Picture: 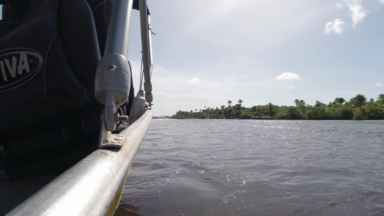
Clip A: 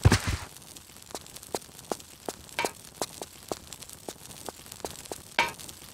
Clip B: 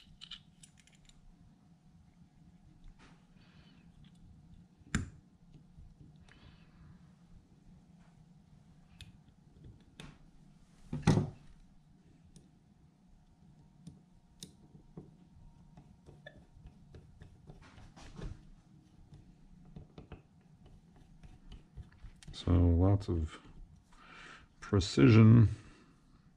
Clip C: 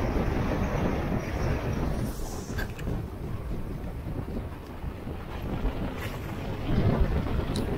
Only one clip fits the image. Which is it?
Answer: C